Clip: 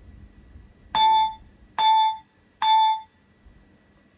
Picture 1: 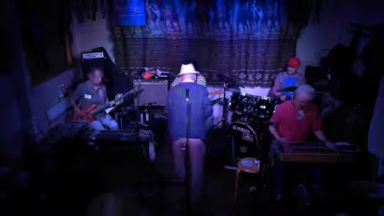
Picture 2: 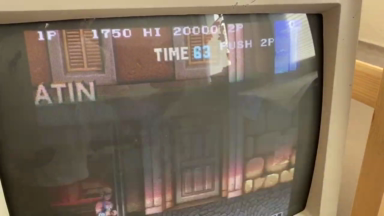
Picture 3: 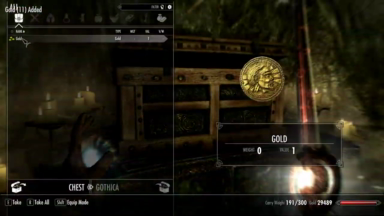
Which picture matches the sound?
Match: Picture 2